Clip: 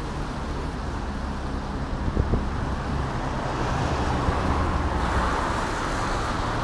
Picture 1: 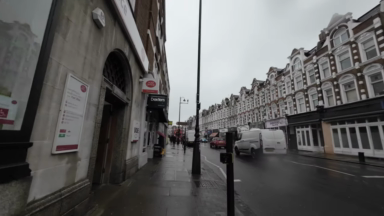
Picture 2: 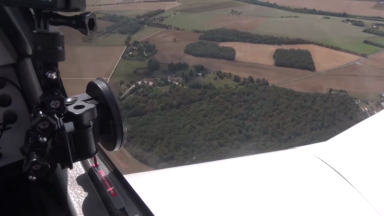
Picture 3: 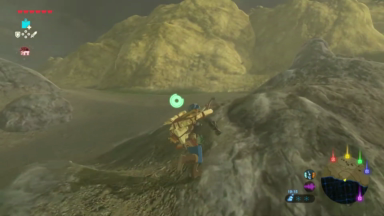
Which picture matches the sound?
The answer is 1